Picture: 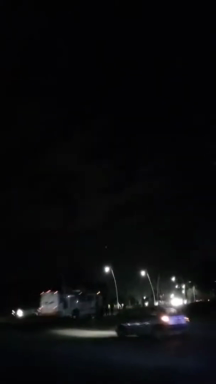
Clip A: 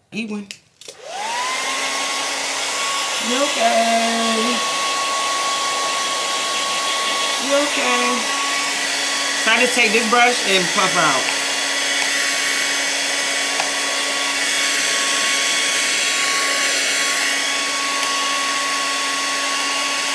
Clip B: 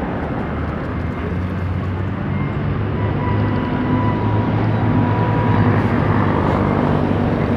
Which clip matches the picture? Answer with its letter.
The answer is B